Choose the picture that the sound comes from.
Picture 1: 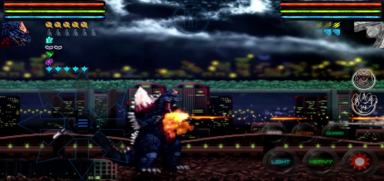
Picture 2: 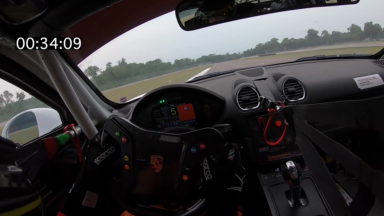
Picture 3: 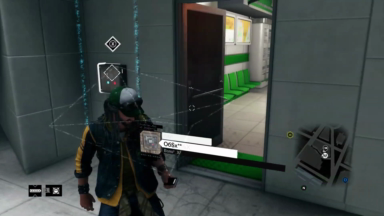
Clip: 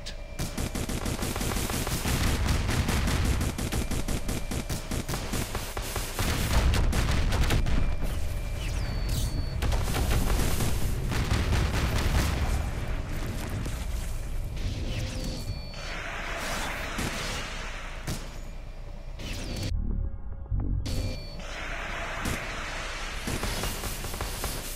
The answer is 1